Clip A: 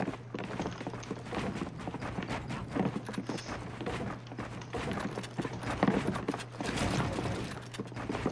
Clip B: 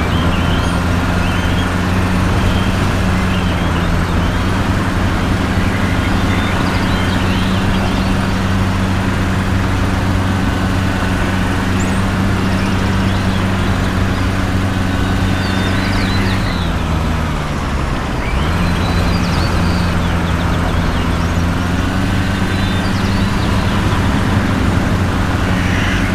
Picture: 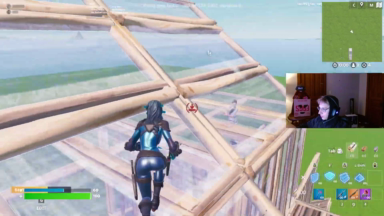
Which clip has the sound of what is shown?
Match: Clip A